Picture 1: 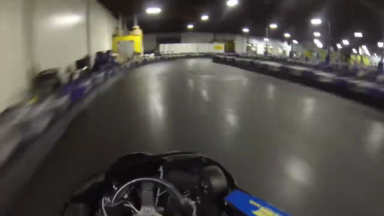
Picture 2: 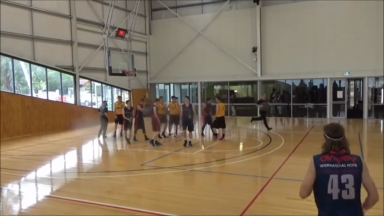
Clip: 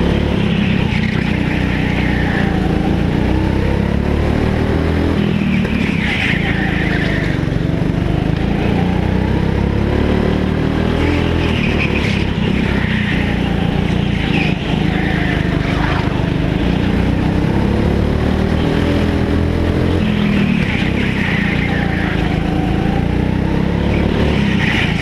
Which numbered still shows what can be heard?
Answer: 1